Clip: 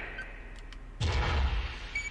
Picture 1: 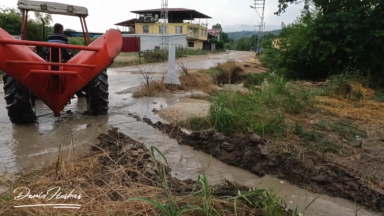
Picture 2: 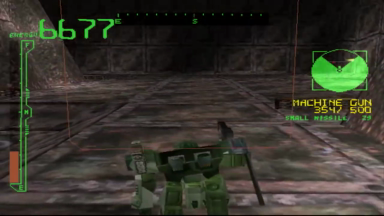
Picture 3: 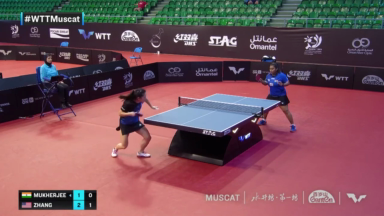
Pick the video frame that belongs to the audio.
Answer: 2